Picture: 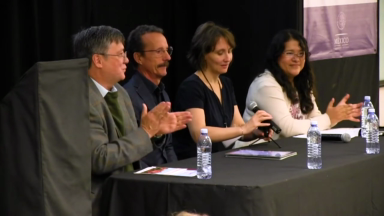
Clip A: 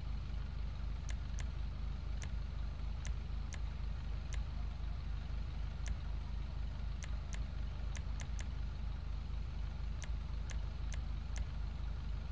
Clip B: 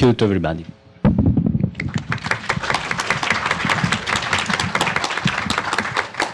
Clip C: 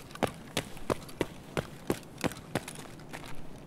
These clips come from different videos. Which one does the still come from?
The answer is B